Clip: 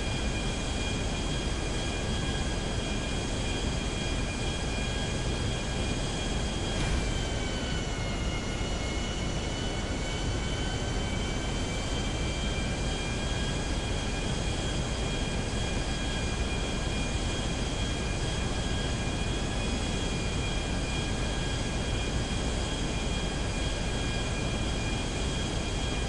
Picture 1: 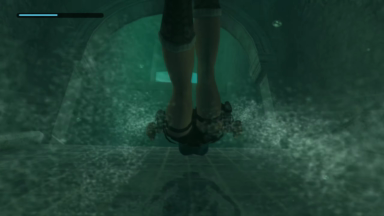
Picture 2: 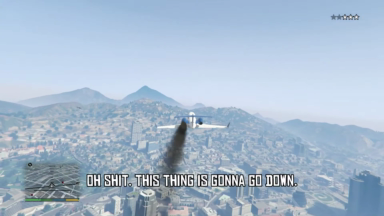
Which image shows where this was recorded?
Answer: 2